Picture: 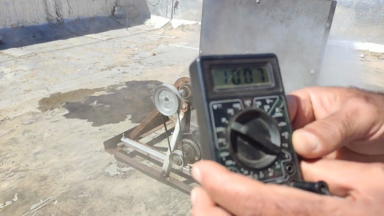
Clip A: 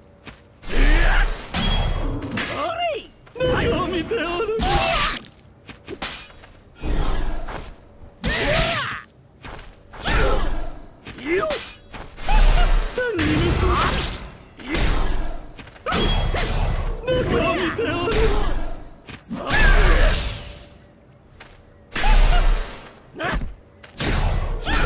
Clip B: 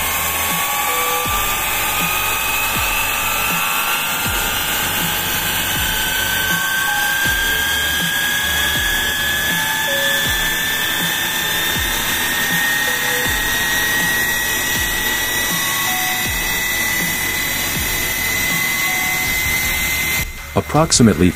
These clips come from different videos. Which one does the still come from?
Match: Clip B